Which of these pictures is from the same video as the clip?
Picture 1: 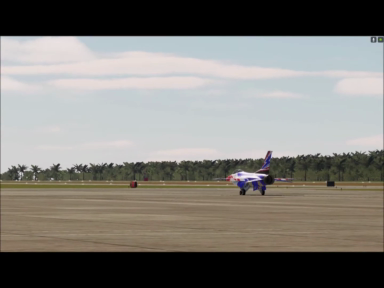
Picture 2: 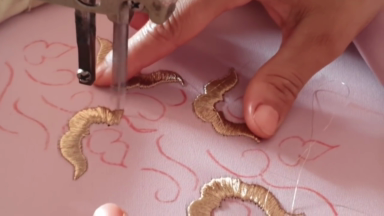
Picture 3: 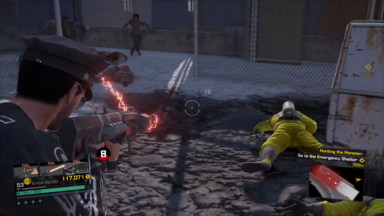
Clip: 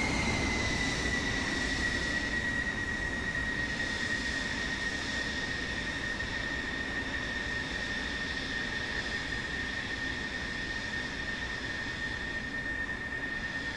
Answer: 1